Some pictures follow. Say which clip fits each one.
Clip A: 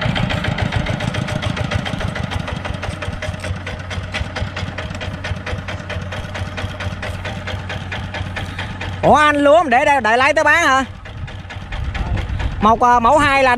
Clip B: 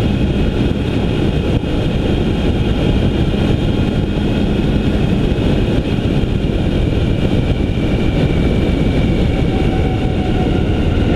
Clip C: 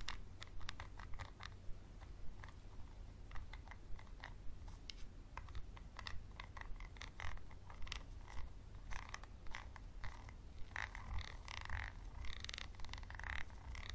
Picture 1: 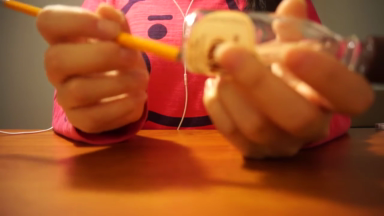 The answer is C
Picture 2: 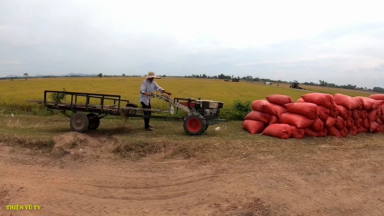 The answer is A